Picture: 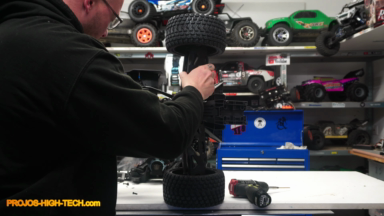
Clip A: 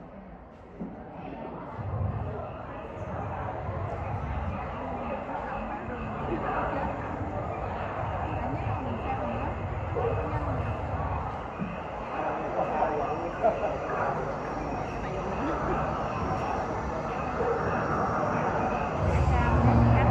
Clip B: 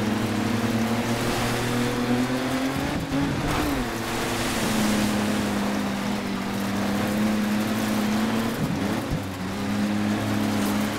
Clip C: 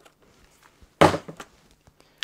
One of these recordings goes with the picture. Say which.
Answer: C